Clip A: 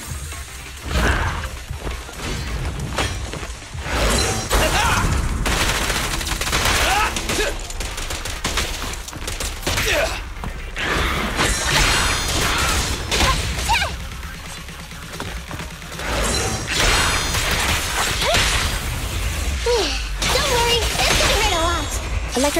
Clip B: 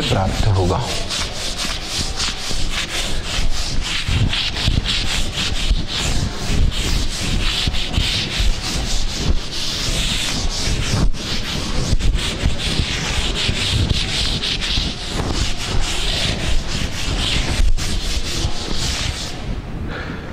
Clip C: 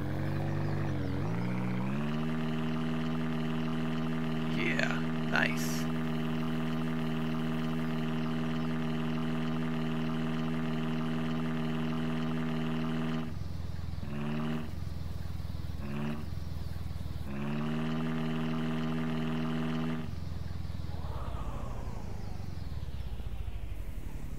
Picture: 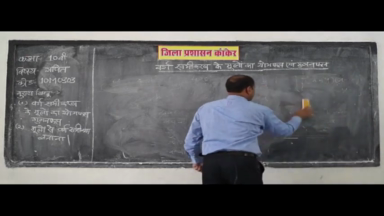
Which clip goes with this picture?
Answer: B